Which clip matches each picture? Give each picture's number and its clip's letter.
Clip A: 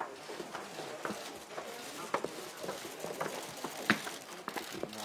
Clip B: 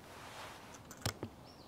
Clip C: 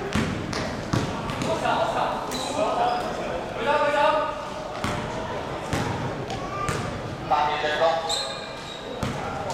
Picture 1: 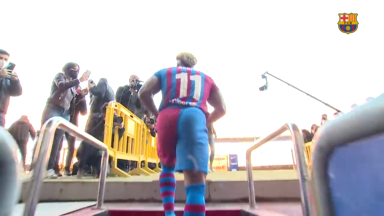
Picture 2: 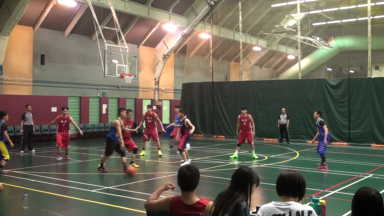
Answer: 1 A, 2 C